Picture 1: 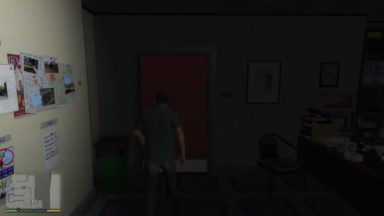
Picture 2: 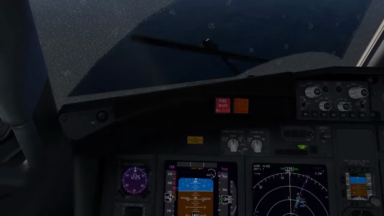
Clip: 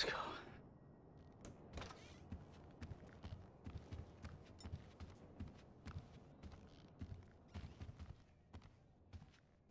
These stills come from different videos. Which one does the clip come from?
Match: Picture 1